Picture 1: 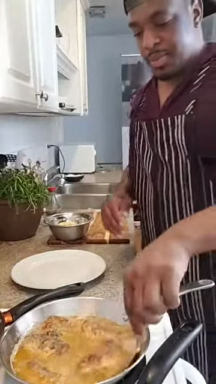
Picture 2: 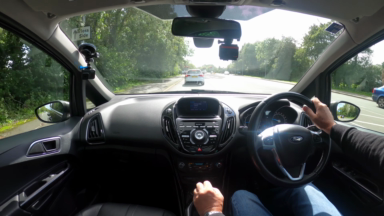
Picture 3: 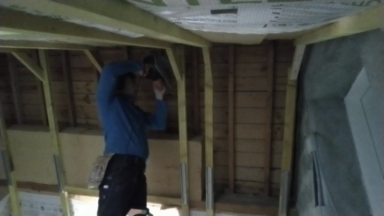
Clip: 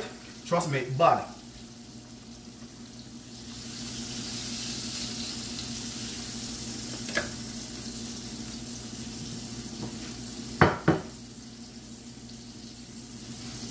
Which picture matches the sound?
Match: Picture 1